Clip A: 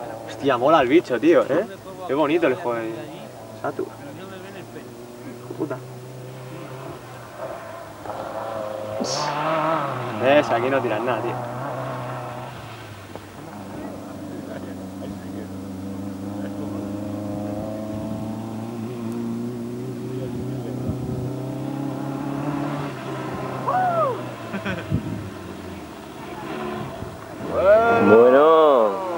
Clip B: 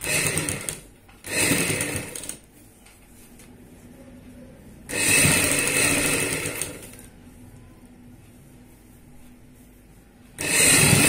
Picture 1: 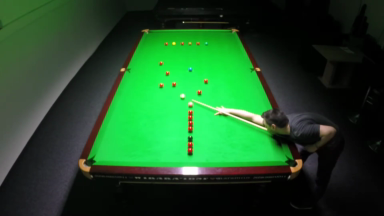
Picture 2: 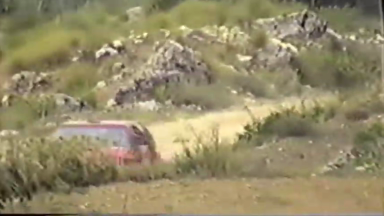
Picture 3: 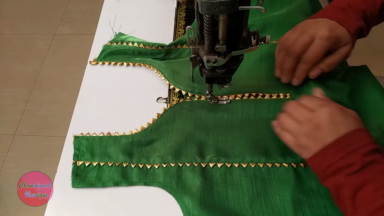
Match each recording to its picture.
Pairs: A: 2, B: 3